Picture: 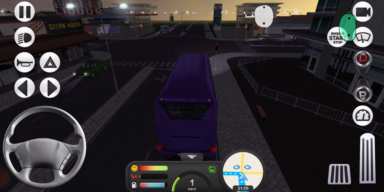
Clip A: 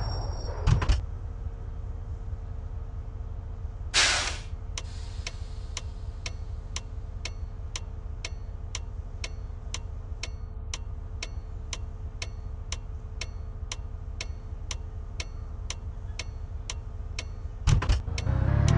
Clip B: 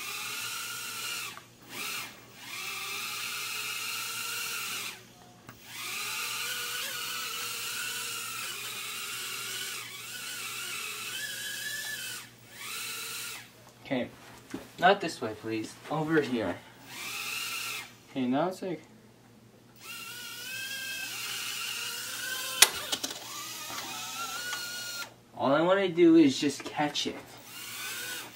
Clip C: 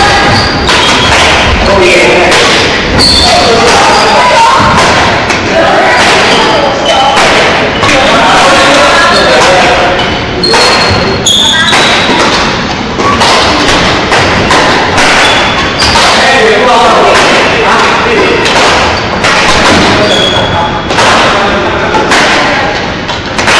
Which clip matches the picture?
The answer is A